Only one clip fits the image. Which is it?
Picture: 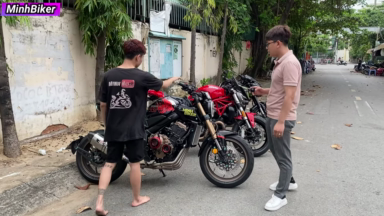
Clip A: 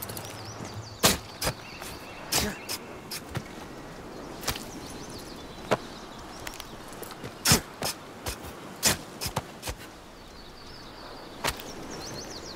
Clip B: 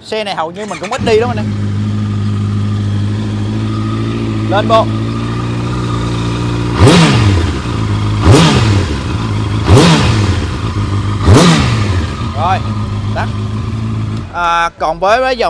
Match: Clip B